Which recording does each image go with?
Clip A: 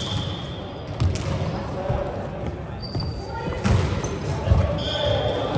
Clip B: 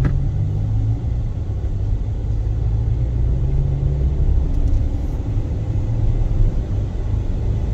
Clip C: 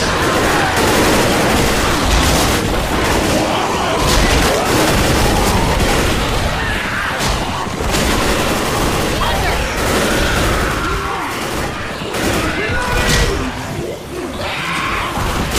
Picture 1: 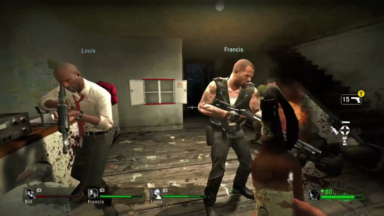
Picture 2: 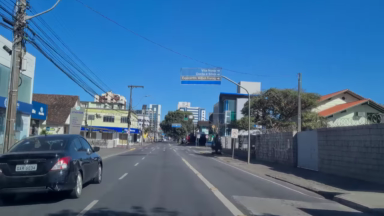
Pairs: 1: C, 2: B